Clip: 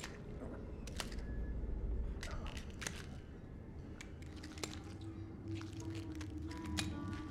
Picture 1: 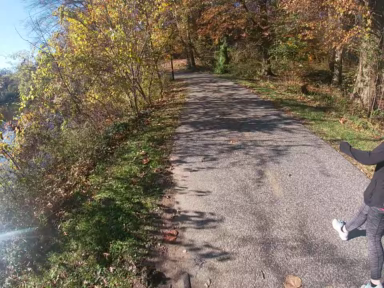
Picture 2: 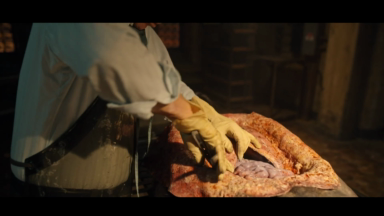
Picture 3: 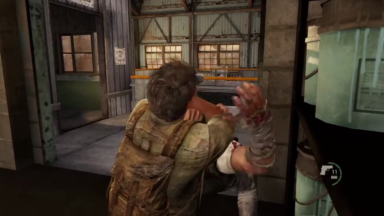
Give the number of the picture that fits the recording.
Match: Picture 2